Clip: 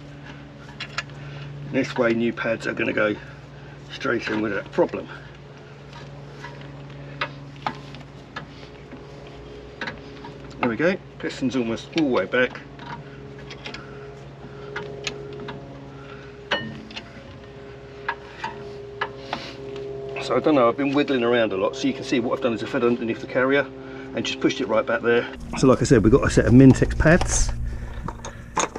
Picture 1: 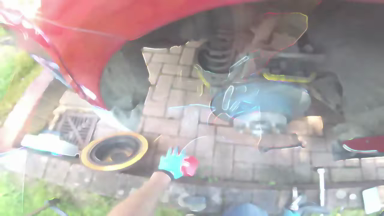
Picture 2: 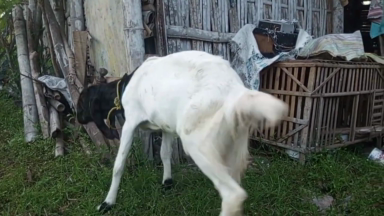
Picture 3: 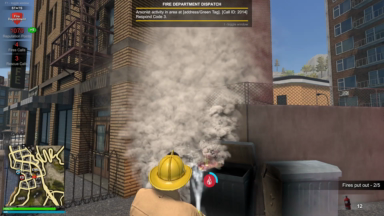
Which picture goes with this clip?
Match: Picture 1